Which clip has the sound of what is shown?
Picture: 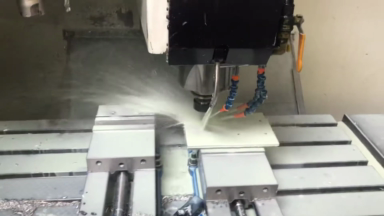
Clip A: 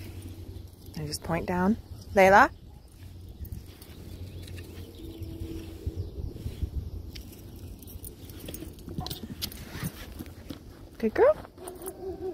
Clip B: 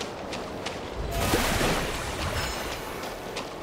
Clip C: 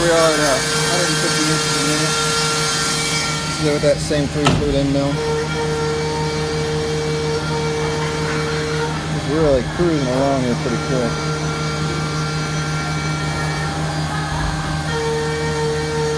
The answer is C